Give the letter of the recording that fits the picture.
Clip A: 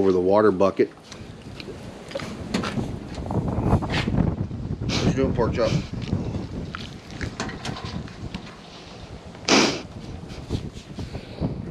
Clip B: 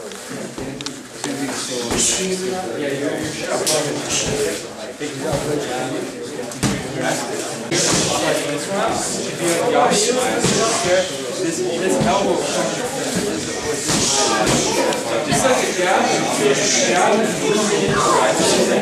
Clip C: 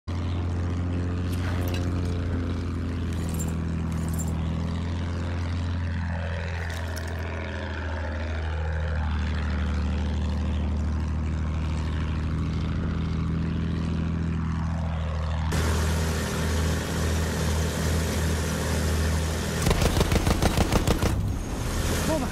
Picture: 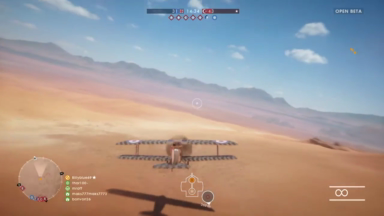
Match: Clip C